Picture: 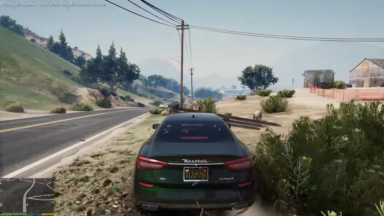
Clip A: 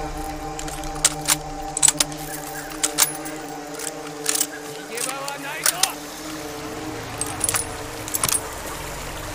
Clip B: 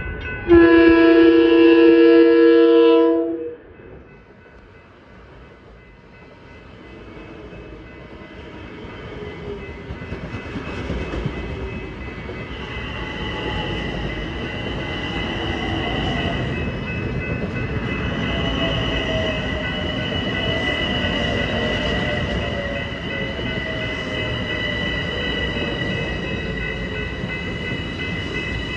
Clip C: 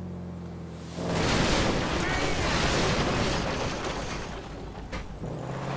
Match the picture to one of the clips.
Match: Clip C